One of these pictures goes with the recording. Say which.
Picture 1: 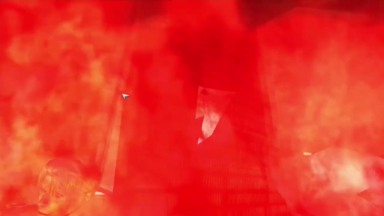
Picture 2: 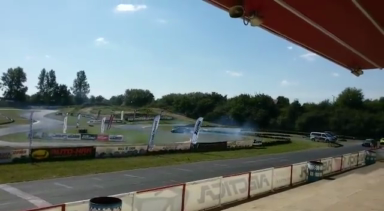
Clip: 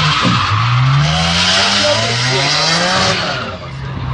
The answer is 2